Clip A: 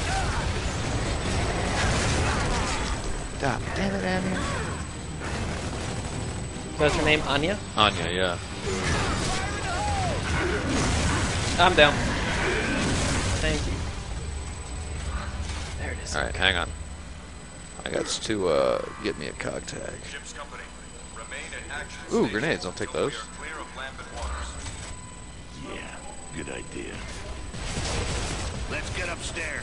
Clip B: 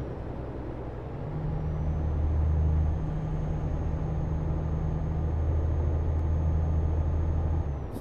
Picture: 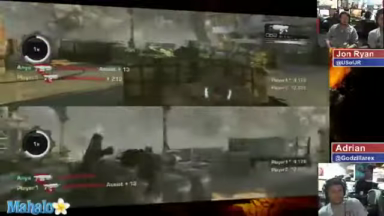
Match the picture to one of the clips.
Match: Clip A